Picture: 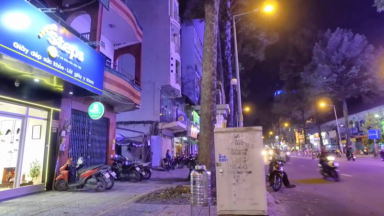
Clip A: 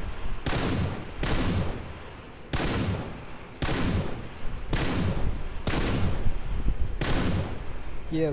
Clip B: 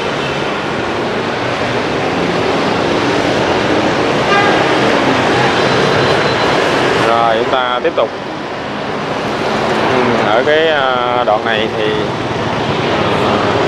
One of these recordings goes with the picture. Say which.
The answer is B